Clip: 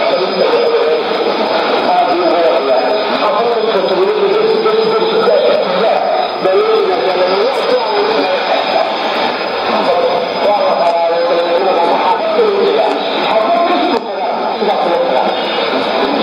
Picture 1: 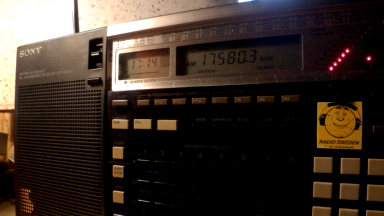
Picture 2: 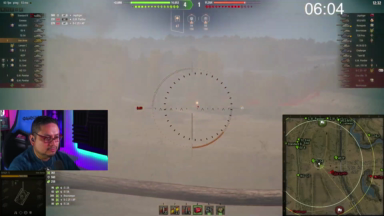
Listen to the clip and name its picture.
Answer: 1